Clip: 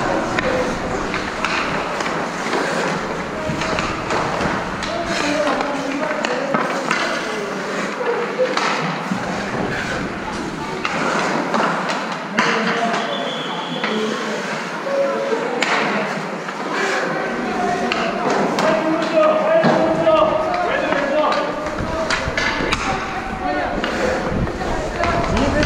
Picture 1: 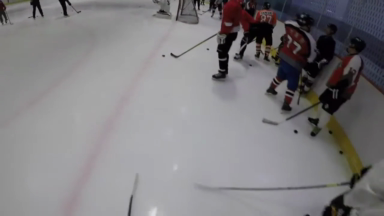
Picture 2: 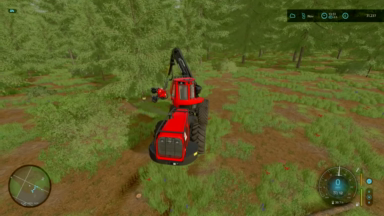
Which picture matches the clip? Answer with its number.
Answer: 1